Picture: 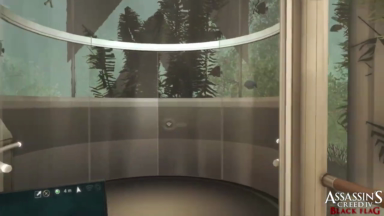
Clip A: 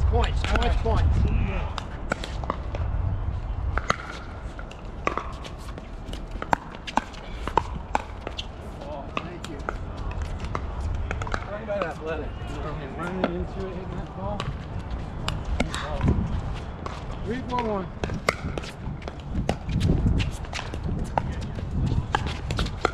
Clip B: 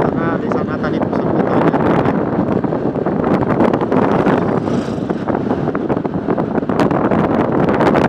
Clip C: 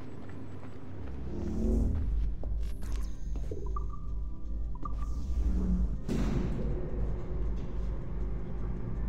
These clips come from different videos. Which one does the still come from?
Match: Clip C